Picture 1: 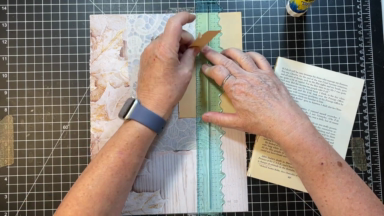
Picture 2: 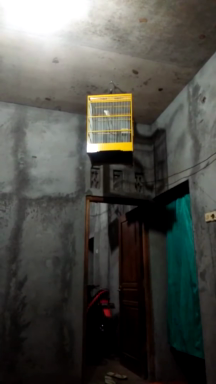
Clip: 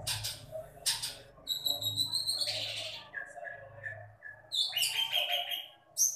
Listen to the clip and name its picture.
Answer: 2